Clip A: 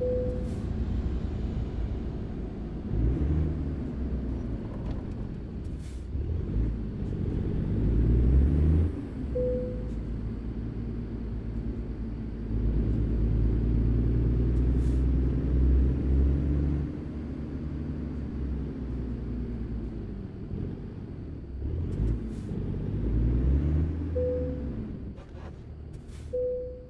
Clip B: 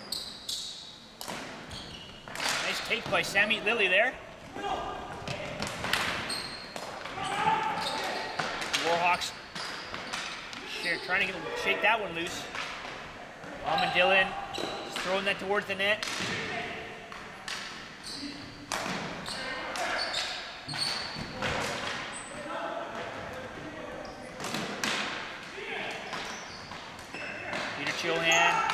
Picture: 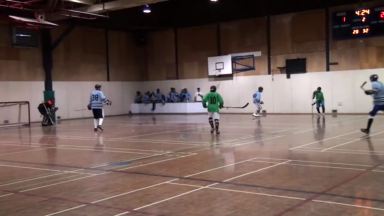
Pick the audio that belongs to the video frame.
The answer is B